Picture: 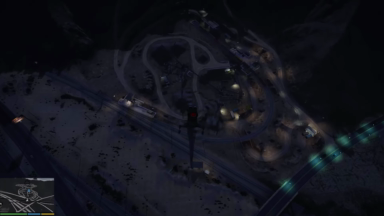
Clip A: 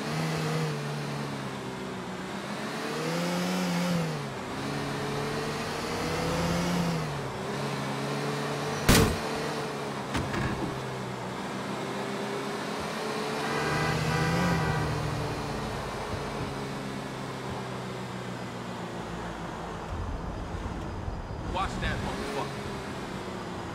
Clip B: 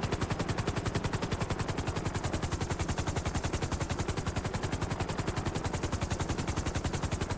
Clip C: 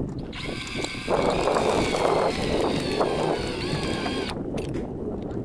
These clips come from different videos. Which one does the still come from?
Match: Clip B